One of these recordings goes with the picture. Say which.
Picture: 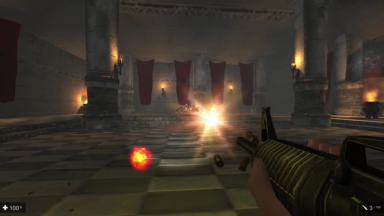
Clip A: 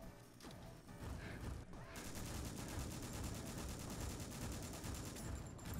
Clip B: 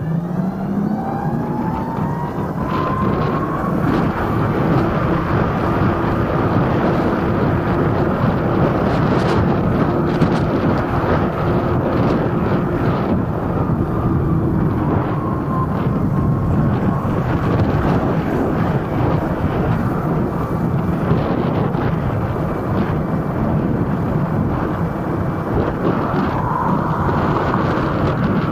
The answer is A